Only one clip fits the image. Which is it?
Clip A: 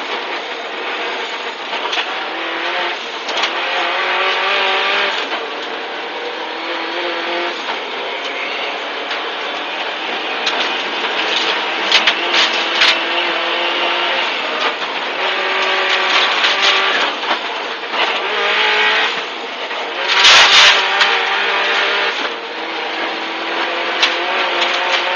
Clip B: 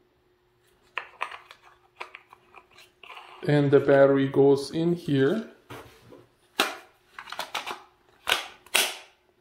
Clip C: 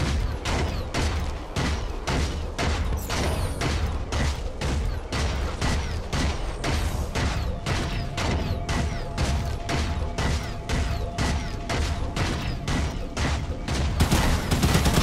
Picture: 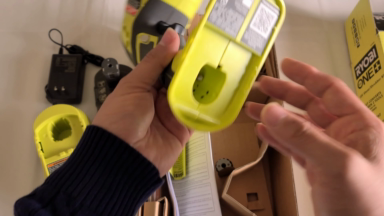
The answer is B